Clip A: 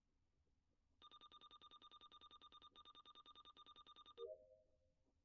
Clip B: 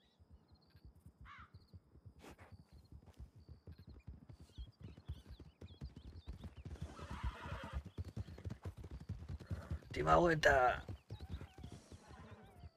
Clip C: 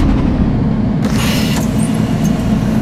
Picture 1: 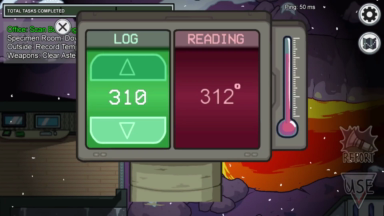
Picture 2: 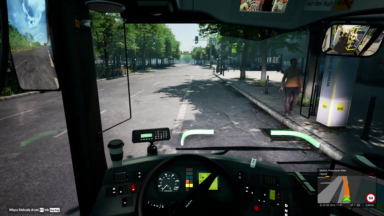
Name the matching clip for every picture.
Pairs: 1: A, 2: C